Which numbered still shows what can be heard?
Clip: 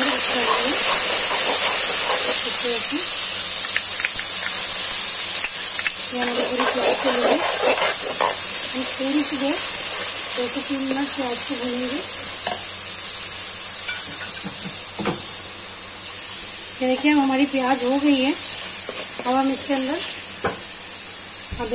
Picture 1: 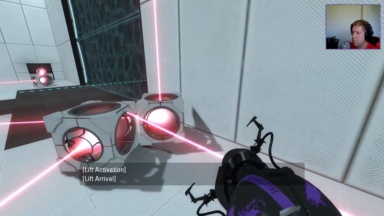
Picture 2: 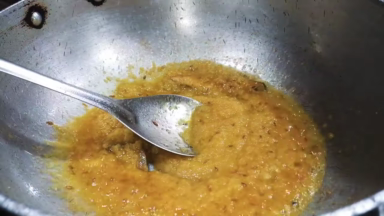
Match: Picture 2